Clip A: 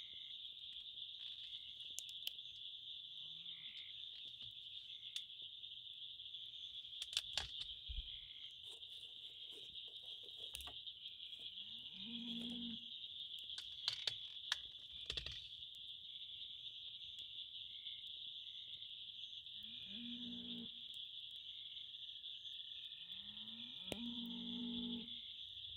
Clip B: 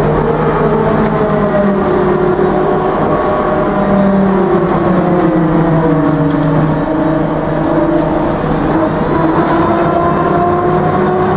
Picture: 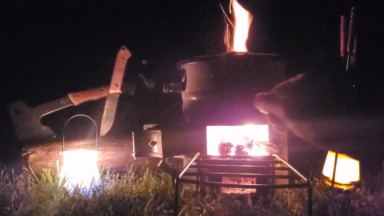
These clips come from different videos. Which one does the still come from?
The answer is A